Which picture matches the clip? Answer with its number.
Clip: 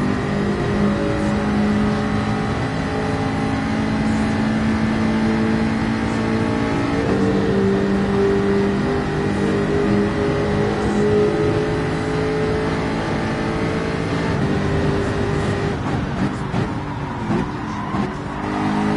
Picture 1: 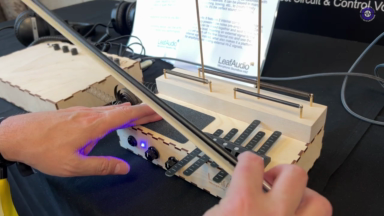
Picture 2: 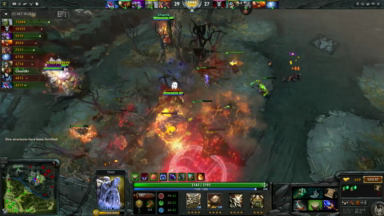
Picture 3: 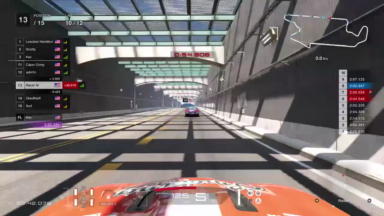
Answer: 3